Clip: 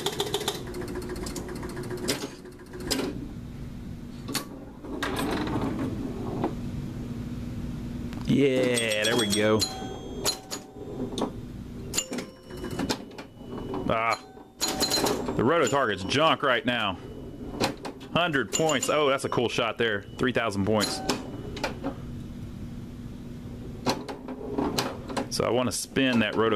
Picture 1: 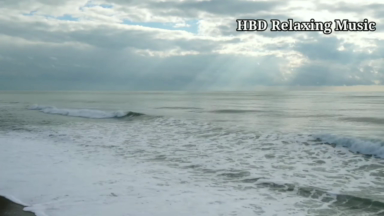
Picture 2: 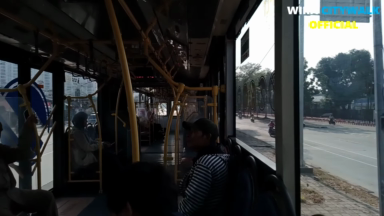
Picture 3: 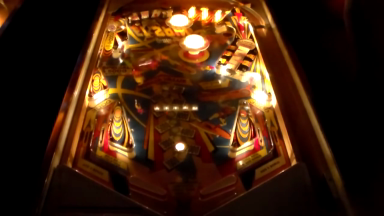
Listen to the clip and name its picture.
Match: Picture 3